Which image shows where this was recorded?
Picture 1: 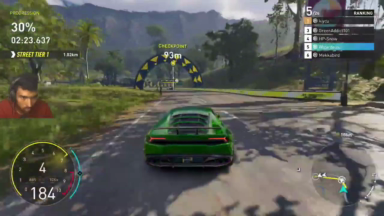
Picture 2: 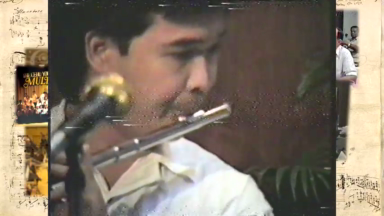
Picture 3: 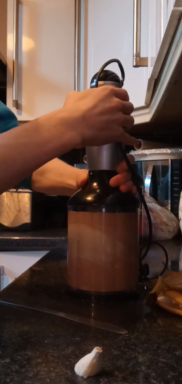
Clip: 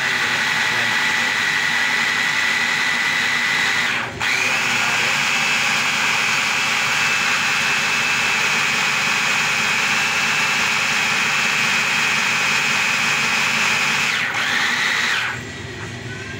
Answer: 3